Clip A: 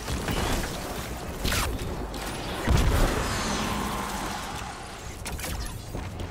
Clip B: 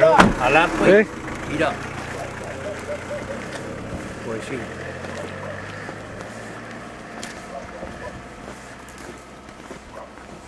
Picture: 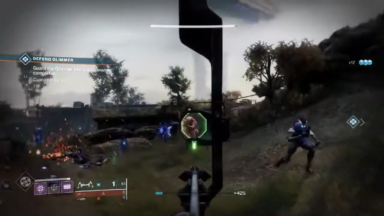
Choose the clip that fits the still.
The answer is A